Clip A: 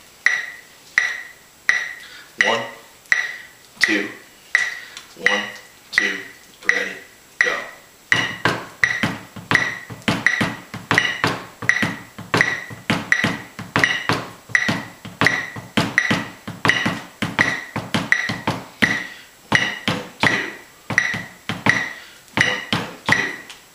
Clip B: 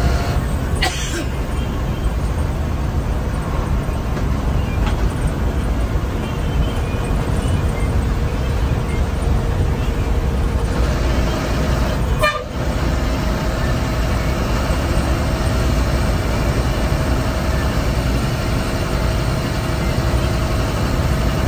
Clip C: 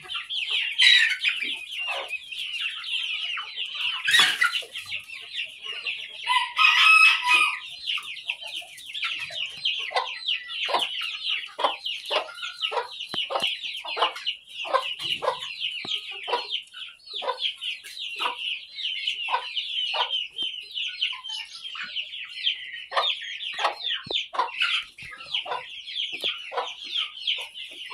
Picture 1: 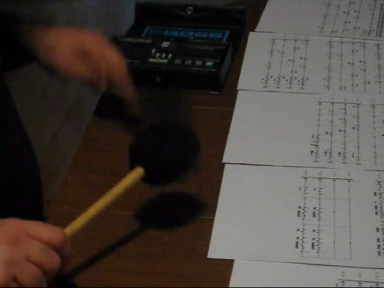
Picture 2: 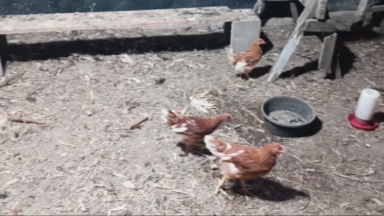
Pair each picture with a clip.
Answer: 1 A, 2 C